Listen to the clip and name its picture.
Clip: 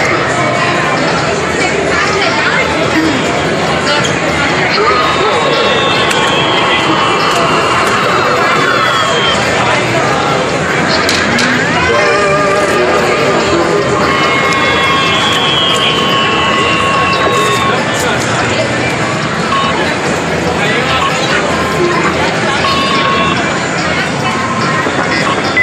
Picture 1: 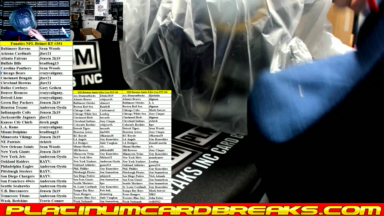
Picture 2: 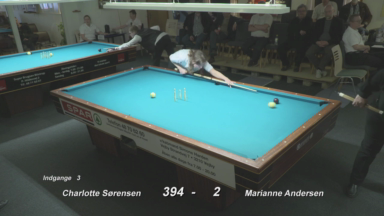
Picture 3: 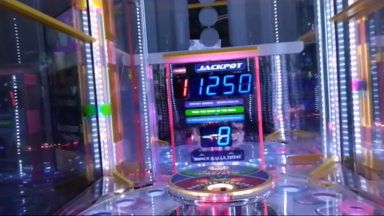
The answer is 3